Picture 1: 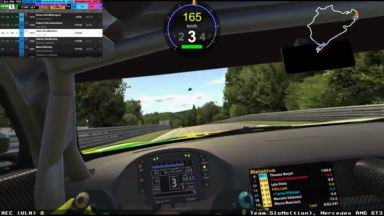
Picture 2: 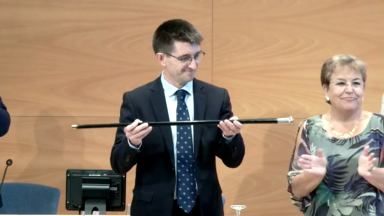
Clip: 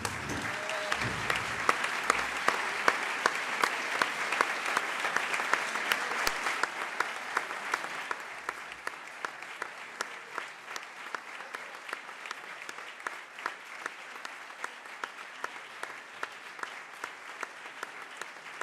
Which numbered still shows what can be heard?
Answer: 2